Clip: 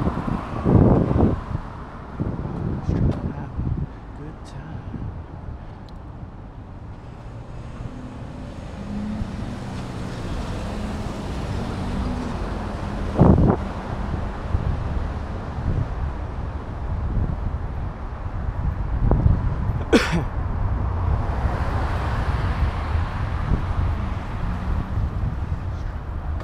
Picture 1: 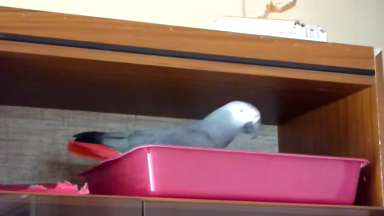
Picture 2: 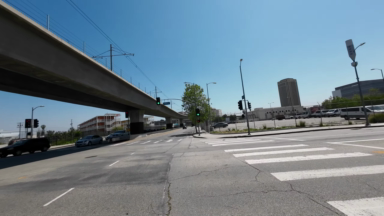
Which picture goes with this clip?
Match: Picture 2